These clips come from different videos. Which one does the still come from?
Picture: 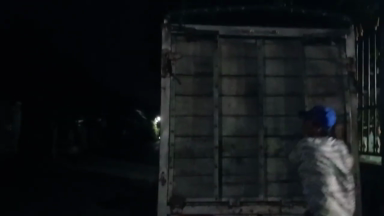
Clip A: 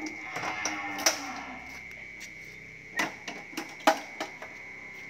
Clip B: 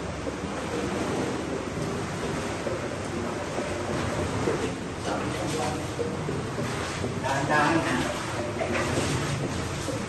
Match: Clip A